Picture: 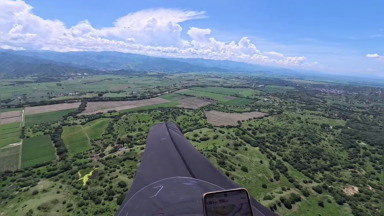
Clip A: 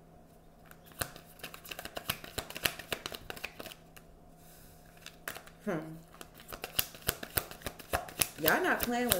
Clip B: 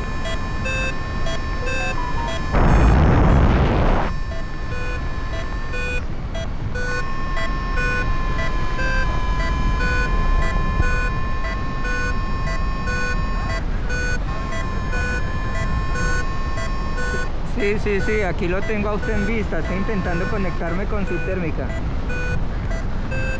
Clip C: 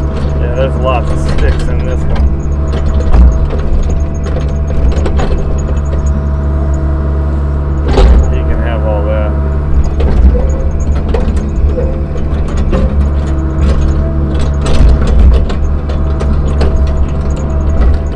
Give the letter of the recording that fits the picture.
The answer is B